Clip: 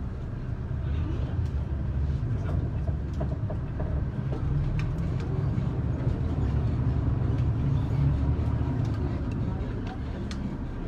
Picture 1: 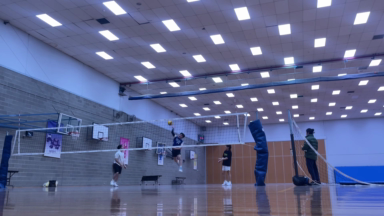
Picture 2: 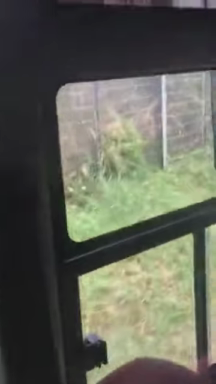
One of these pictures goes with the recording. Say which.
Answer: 2